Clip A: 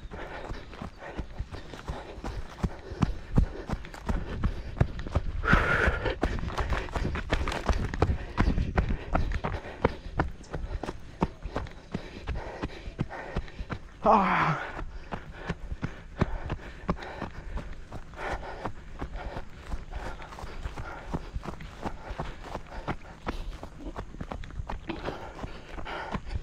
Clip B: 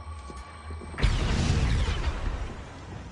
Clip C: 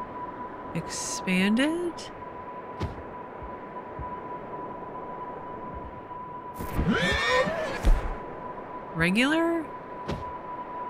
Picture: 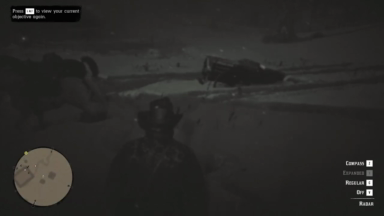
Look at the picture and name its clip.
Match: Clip C